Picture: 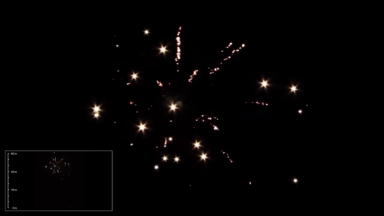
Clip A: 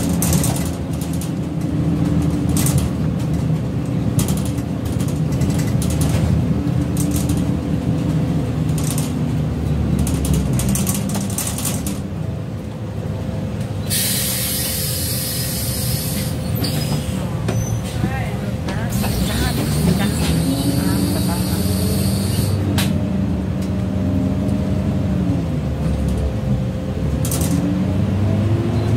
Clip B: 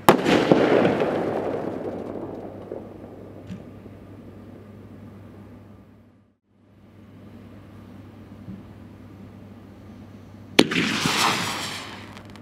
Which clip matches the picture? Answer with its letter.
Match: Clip B